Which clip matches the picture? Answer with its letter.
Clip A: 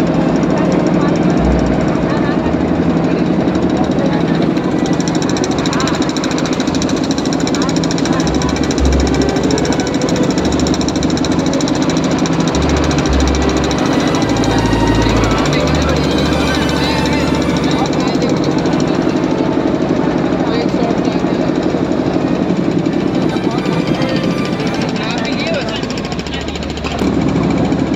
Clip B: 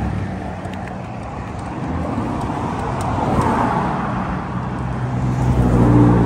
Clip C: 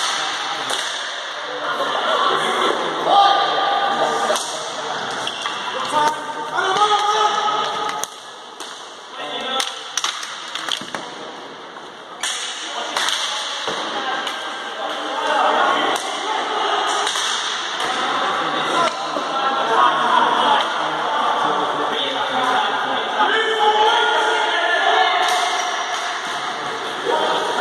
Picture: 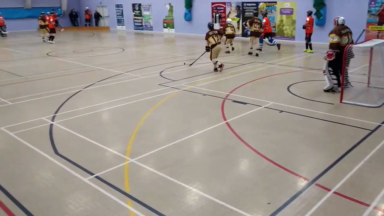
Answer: C